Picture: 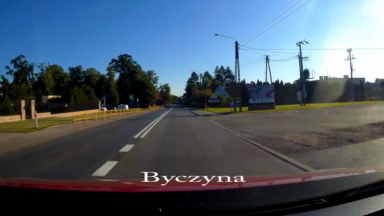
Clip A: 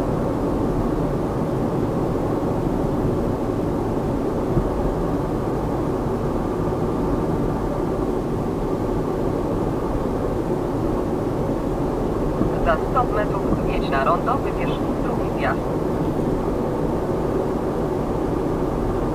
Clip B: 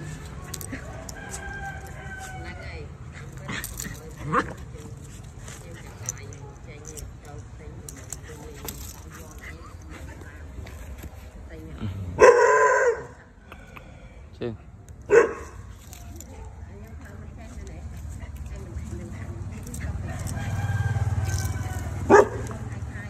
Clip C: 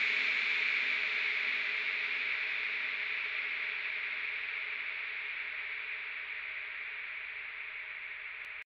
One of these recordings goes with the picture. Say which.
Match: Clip A